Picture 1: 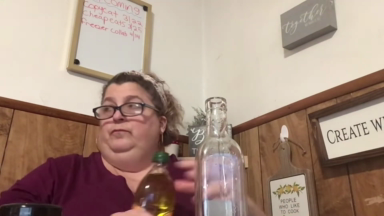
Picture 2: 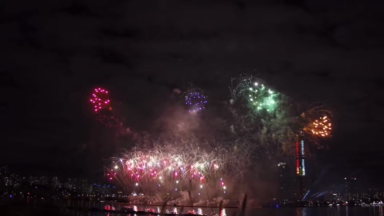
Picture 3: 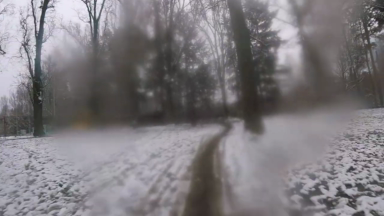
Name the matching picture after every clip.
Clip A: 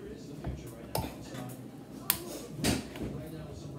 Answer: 1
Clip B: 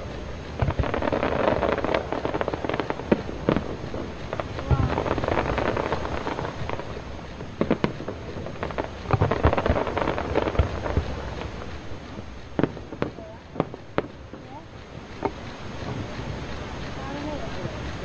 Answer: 2